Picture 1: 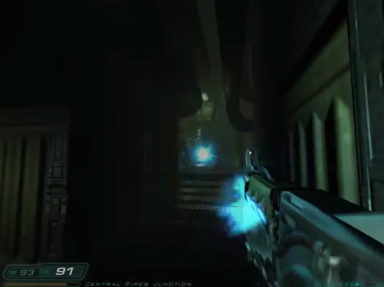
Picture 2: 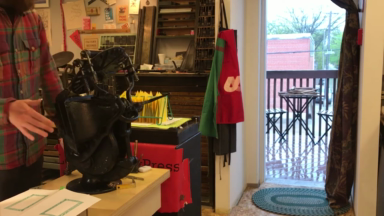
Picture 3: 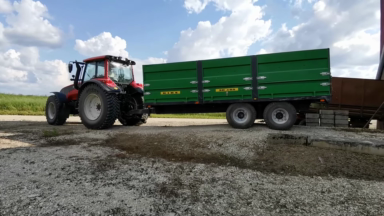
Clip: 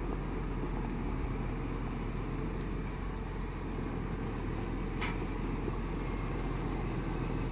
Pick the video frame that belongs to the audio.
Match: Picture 3